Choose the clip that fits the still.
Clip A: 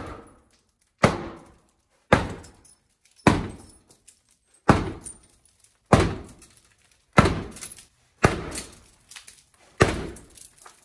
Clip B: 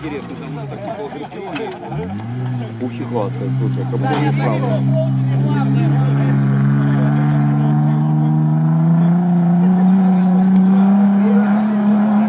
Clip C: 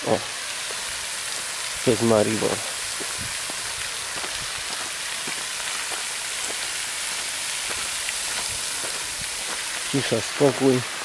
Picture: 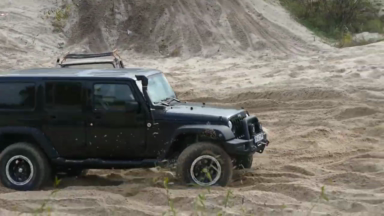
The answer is B